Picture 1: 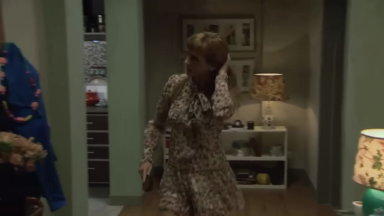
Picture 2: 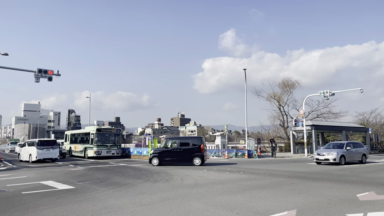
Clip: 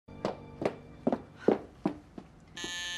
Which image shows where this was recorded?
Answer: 1